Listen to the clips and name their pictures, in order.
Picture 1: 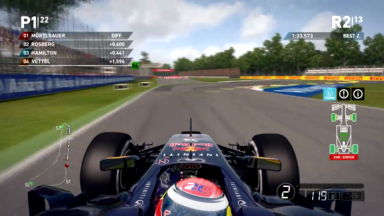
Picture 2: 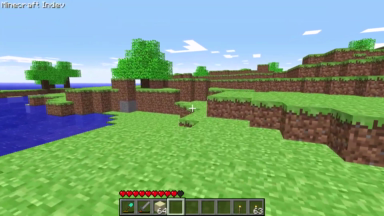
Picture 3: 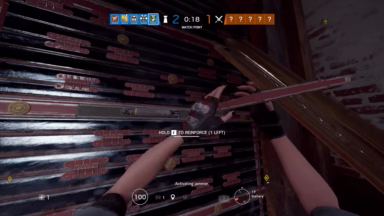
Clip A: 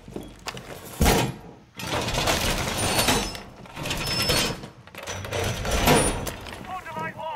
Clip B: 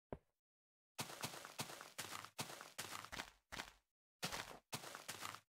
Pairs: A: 3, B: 2